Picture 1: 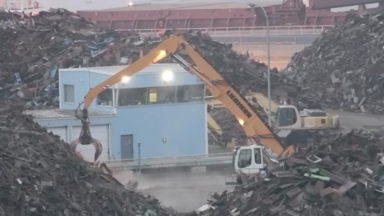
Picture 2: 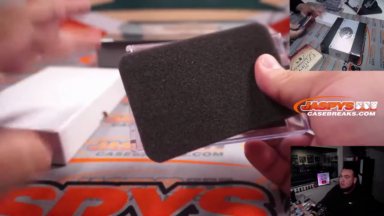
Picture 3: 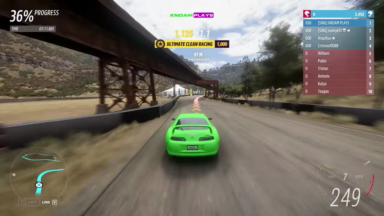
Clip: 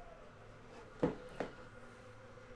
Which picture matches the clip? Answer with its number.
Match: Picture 2